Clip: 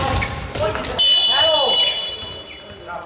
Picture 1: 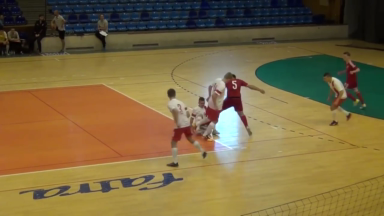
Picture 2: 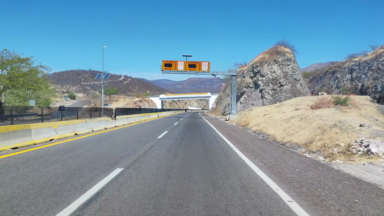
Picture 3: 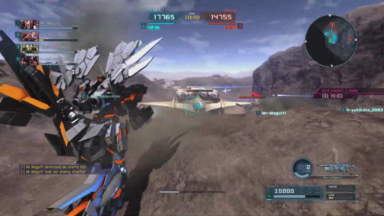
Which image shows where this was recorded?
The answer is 1